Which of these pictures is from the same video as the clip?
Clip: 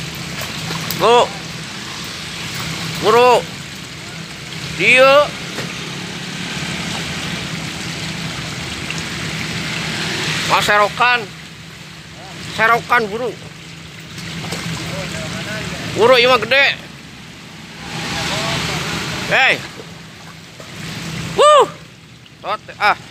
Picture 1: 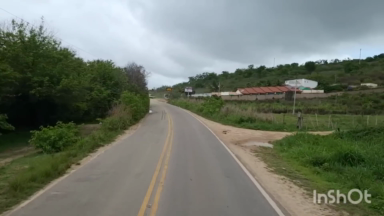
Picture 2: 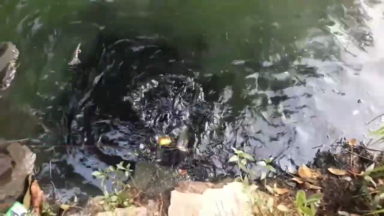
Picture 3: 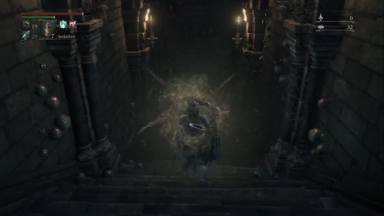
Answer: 2